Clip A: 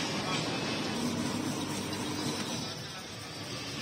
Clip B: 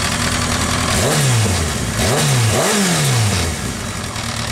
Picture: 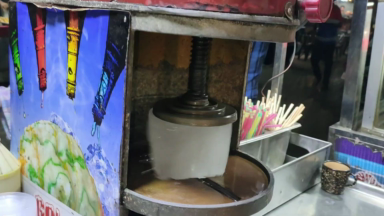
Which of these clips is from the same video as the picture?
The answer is A